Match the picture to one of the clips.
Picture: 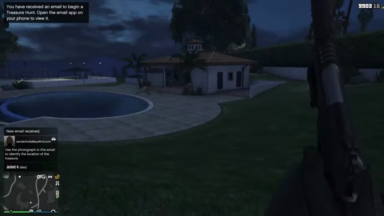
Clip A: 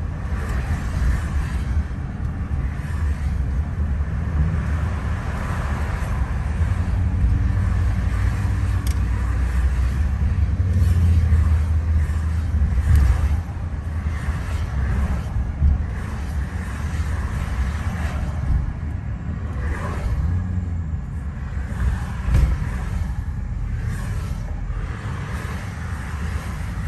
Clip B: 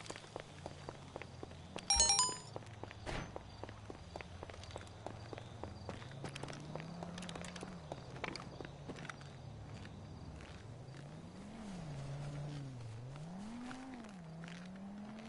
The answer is B